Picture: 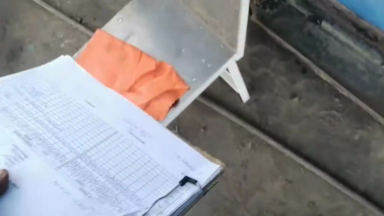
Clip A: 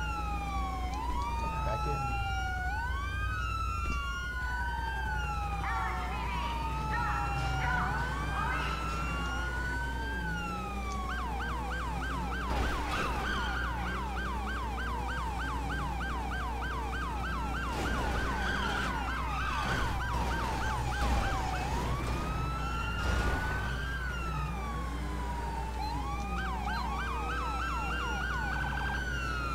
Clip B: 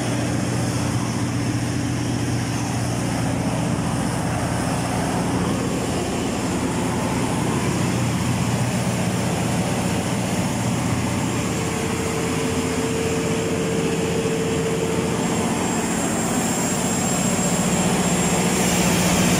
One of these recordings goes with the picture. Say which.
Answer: B